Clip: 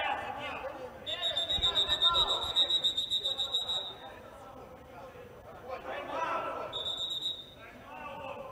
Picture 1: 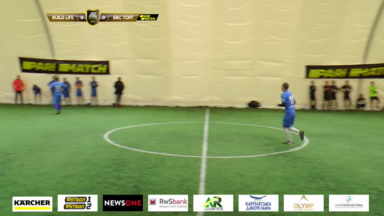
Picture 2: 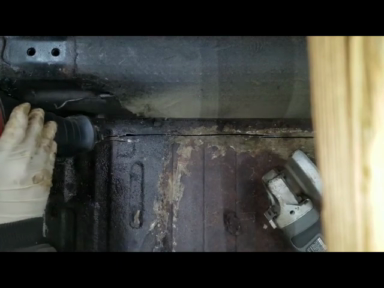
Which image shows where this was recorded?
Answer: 1